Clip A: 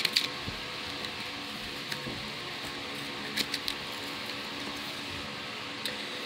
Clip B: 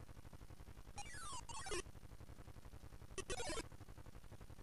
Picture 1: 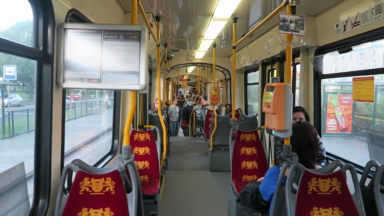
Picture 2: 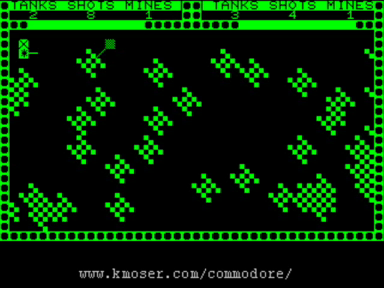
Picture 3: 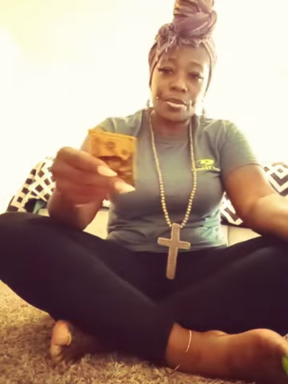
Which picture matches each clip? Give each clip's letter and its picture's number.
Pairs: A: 3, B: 2